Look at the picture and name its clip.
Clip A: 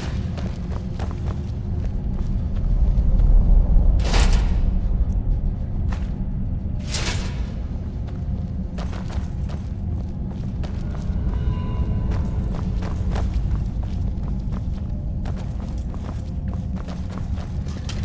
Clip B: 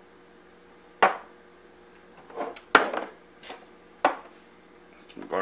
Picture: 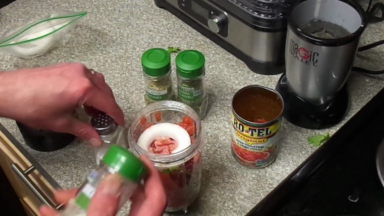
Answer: B